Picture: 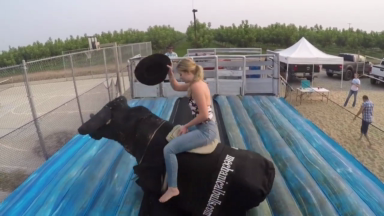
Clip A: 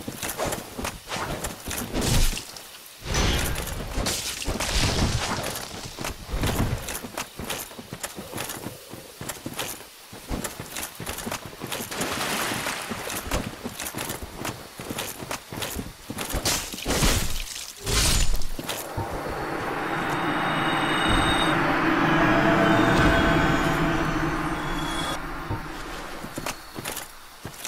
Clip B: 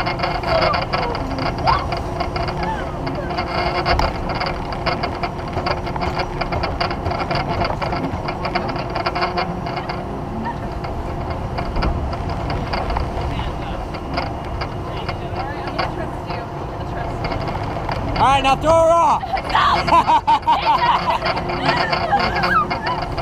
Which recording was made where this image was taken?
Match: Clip B